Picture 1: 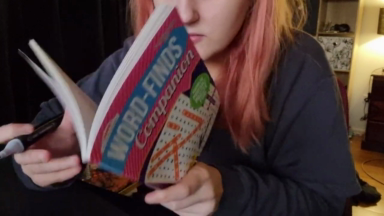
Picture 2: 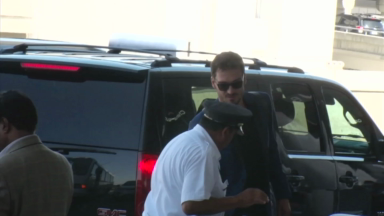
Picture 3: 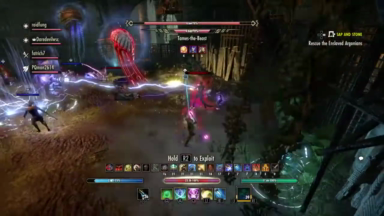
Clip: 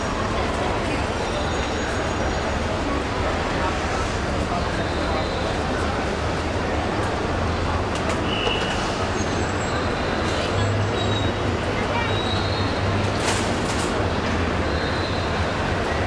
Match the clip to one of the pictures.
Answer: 2